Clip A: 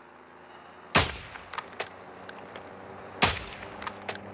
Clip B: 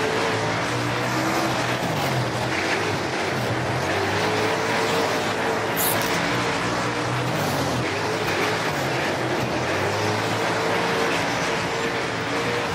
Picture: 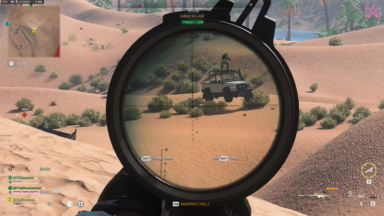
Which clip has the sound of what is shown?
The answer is A